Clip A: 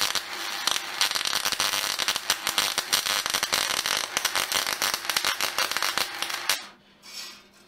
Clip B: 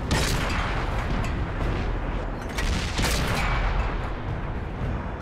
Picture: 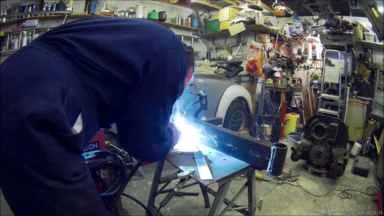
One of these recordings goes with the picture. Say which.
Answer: A